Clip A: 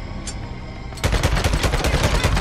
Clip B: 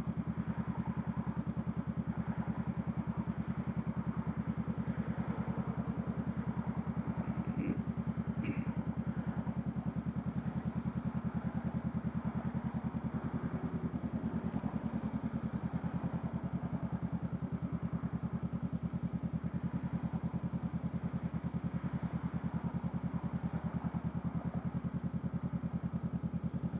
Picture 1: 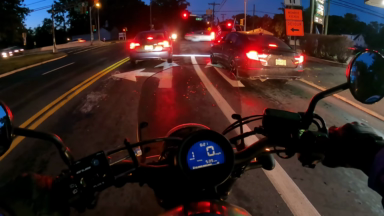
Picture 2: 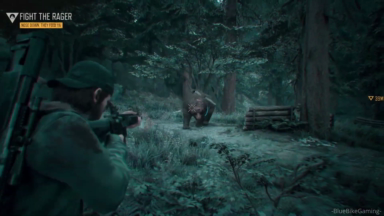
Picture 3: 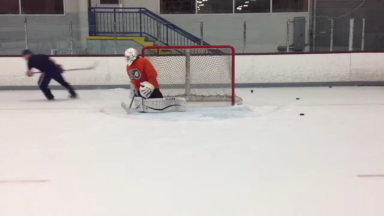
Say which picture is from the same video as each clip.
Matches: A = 2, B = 1